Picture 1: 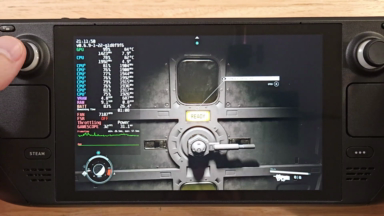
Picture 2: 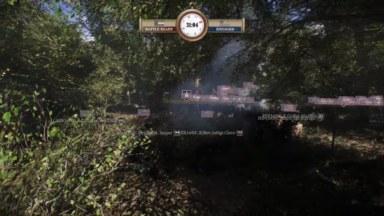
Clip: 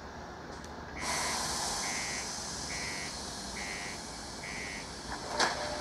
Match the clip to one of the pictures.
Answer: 1